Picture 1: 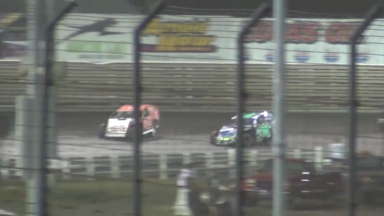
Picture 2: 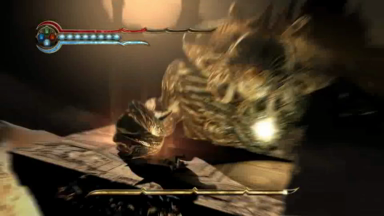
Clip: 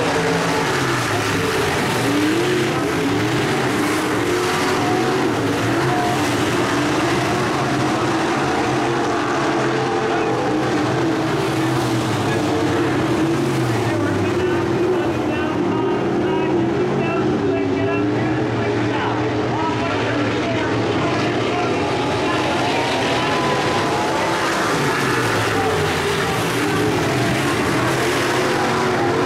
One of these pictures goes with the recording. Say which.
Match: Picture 1